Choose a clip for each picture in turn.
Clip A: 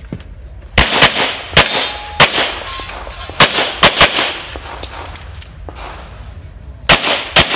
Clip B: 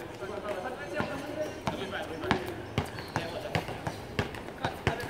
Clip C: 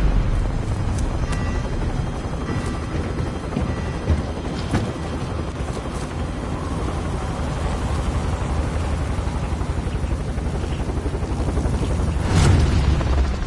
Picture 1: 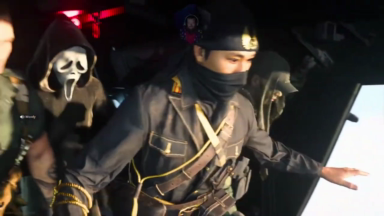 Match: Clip C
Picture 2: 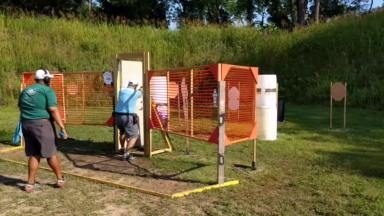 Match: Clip A